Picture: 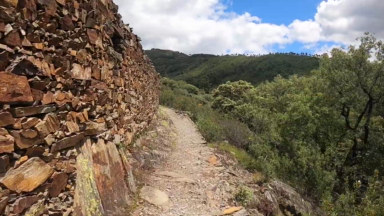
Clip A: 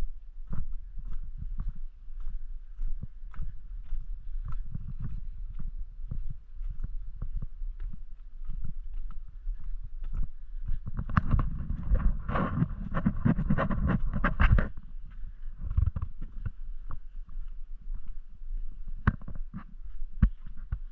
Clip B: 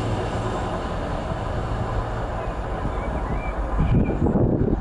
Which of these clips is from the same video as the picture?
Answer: A